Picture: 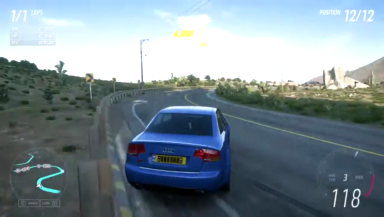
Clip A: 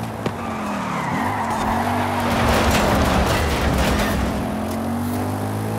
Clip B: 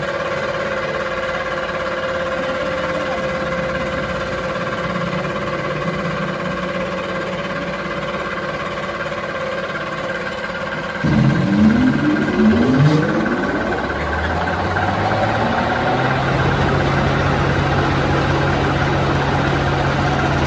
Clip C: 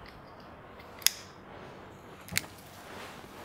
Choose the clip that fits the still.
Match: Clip A